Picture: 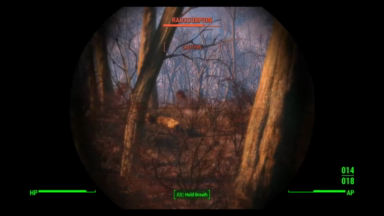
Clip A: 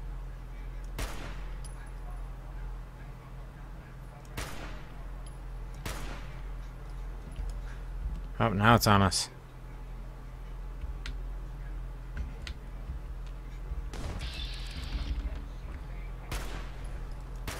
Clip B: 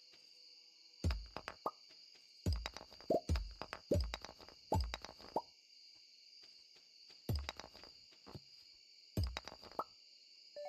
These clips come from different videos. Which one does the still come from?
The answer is A